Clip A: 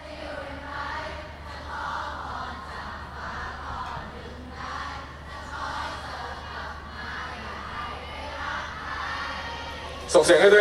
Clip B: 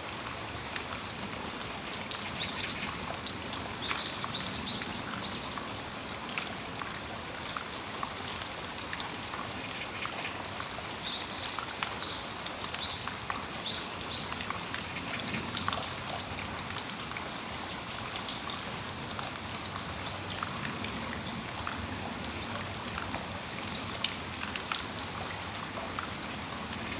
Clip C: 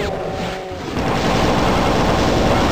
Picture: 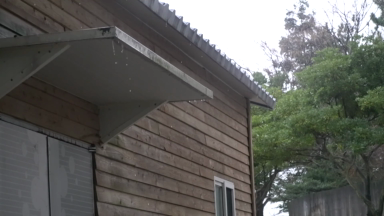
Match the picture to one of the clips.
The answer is B